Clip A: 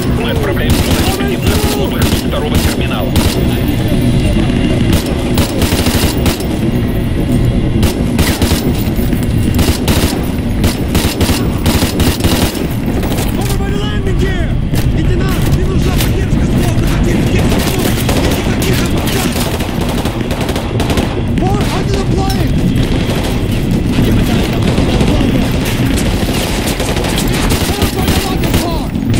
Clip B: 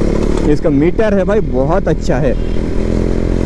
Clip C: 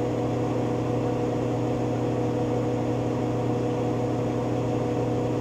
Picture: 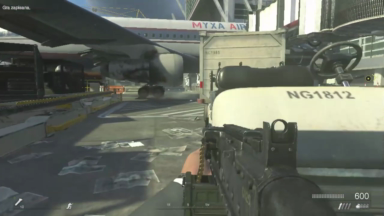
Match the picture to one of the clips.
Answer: A